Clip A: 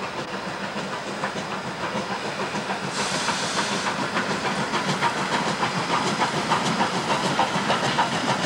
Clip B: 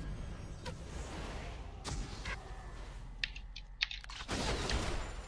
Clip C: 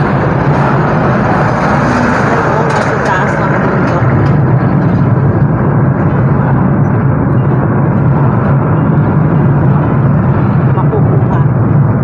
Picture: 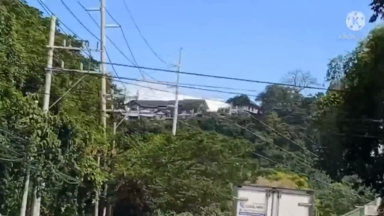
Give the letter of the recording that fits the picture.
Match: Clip C